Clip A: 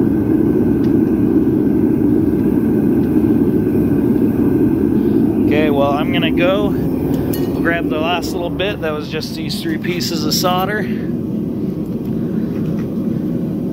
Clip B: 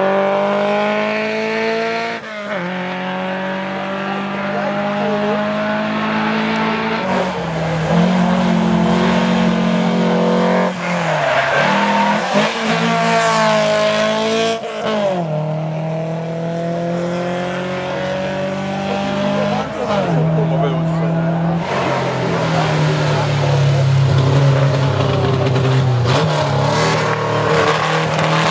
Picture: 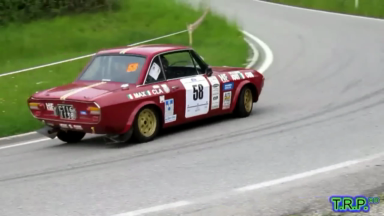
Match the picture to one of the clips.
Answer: B